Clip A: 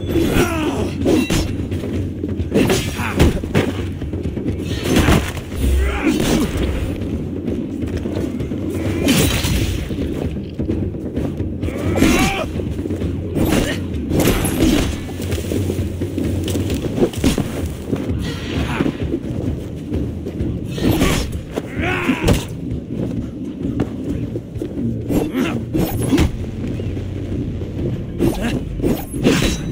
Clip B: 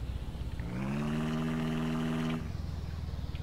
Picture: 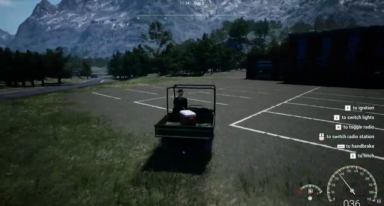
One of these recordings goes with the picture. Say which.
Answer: B